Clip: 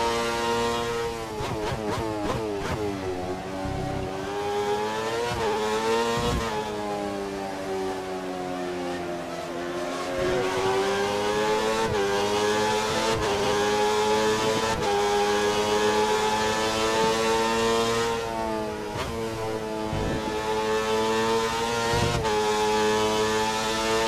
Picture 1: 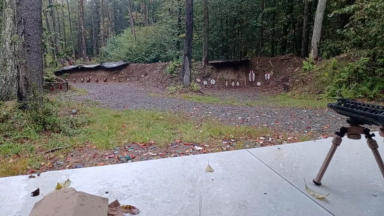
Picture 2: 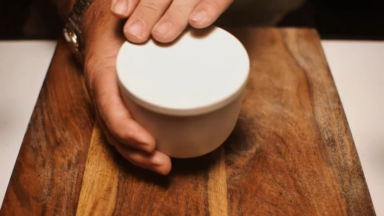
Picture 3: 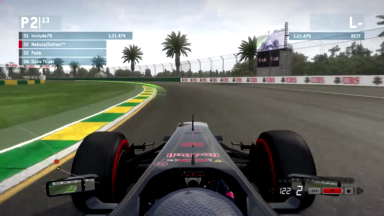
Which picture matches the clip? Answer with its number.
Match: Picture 3